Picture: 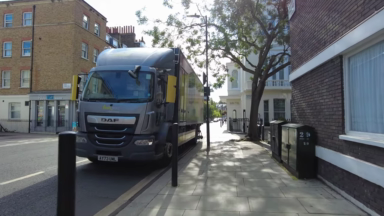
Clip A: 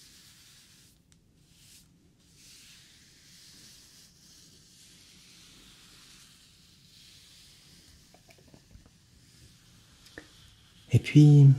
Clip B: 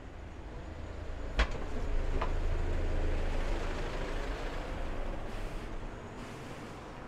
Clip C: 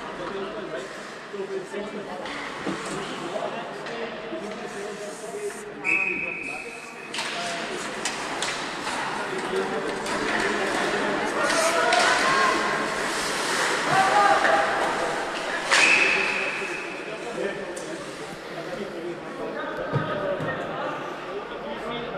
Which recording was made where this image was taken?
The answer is B